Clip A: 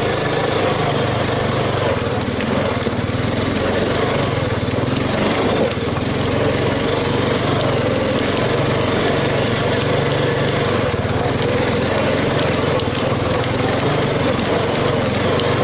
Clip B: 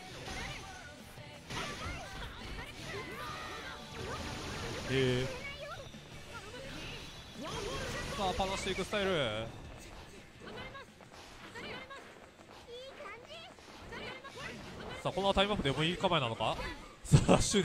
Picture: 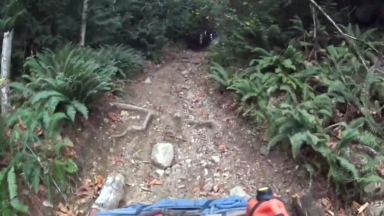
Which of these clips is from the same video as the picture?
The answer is A